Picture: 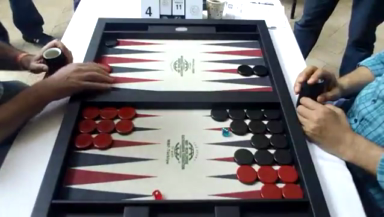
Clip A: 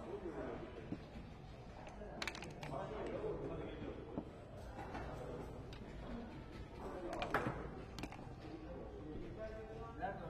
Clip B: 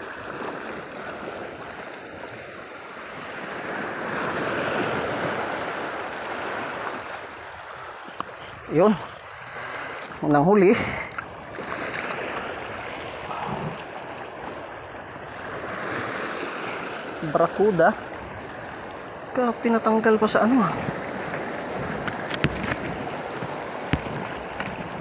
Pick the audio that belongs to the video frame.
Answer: A